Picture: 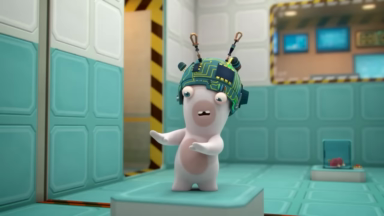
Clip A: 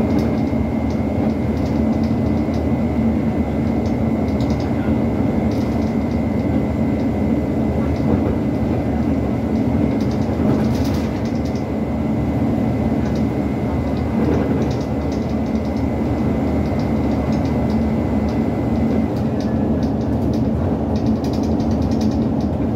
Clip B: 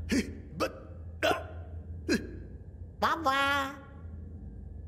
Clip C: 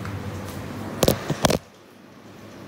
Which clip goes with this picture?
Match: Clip B